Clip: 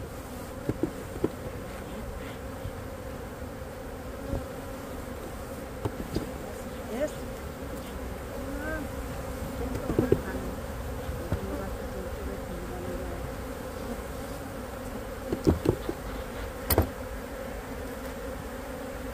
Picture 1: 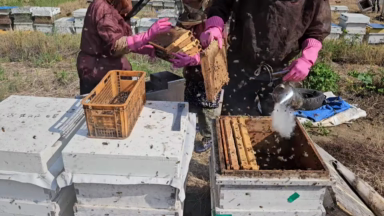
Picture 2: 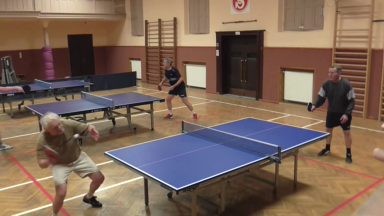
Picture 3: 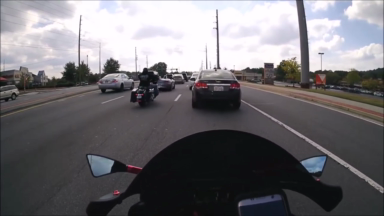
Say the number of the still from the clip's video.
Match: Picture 1